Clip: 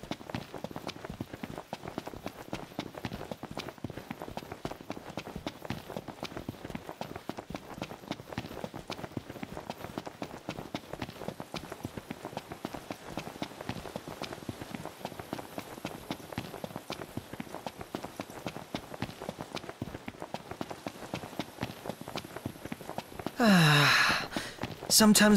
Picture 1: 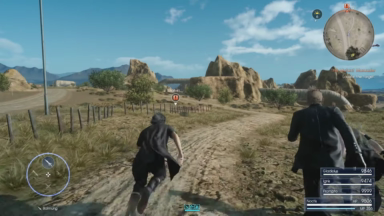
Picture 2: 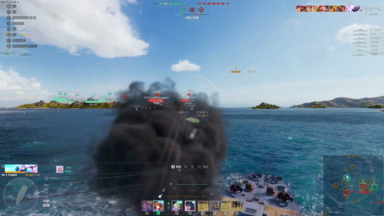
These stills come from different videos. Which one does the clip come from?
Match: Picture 1